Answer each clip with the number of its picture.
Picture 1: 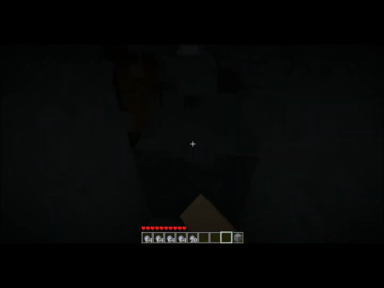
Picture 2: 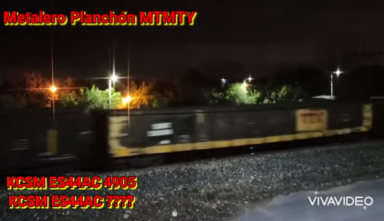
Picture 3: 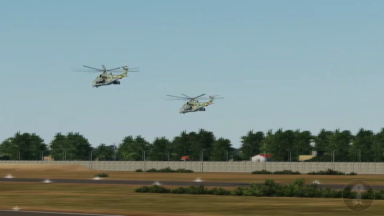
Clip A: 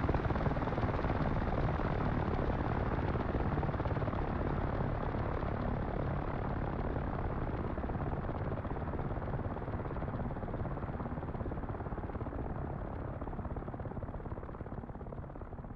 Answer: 3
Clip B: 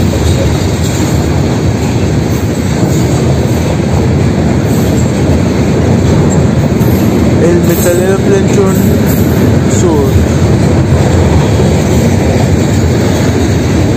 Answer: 2